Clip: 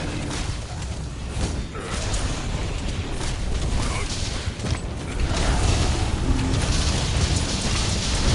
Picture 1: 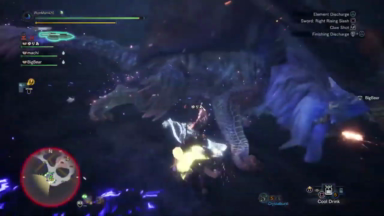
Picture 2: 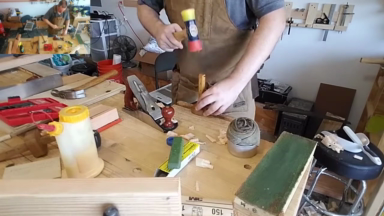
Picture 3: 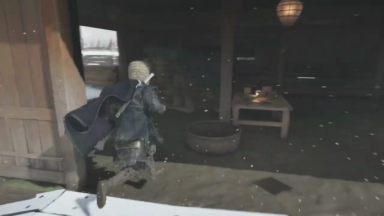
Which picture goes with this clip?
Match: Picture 1